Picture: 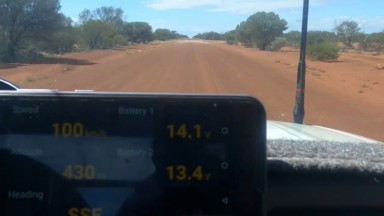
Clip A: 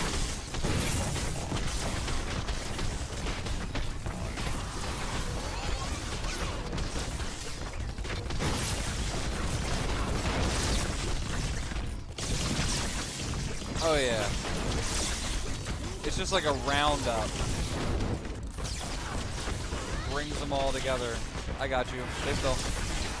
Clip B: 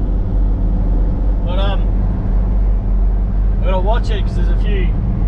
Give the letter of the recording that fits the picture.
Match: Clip B